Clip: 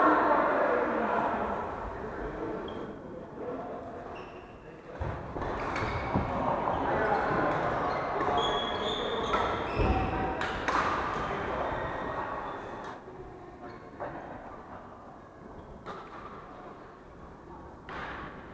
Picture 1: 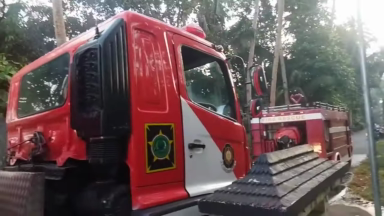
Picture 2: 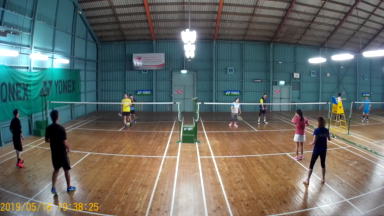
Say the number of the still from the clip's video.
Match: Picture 2